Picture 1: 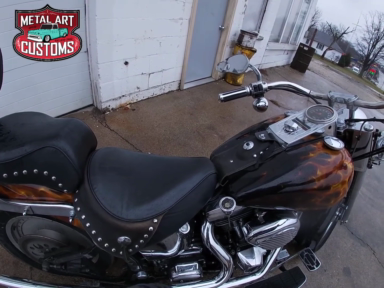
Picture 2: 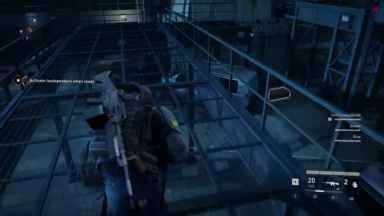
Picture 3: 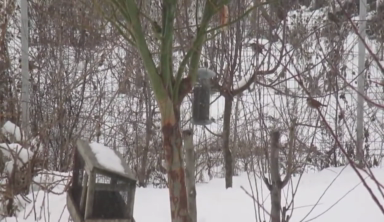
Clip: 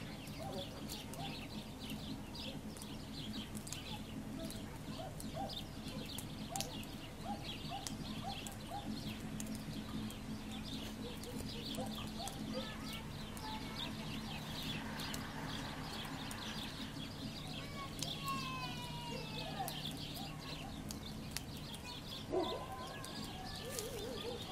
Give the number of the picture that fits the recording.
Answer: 3